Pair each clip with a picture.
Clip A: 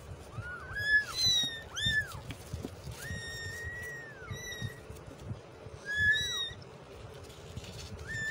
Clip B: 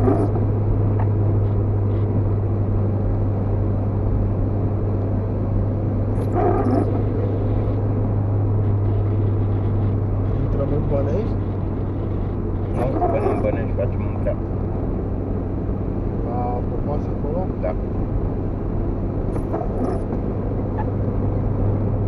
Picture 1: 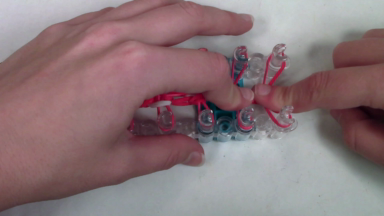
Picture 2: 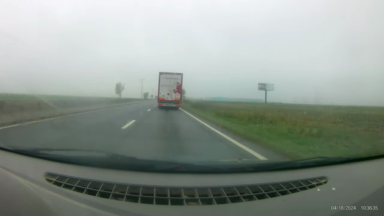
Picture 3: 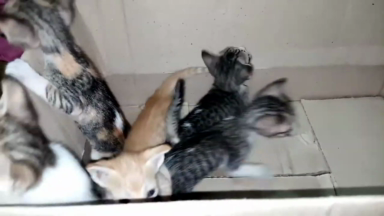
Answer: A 3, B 2